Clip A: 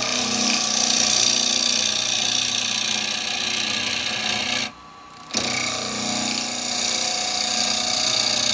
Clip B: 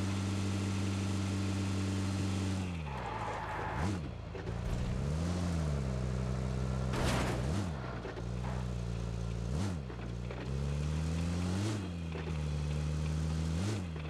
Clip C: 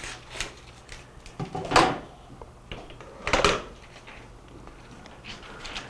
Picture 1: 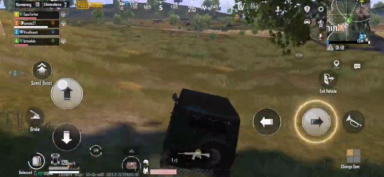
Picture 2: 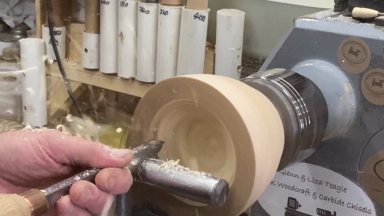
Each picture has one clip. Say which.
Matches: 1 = B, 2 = A